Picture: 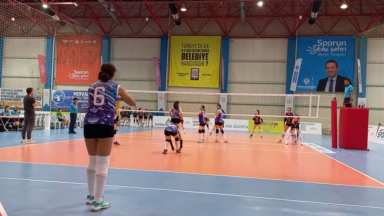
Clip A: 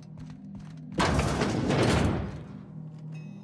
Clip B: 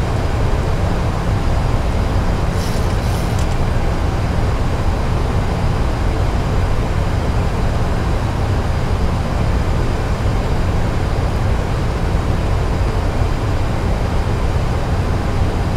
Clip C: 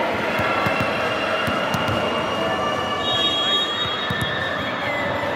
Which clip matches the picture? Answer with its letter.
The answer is C